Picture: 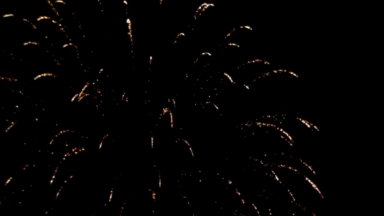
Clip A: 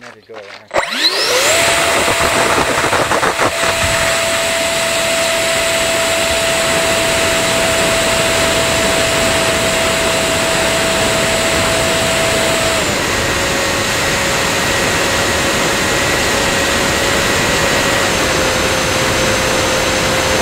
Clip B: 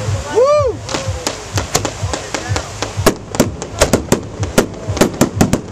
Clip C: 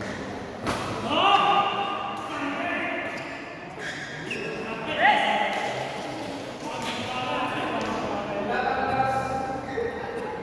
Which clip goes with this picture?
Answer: B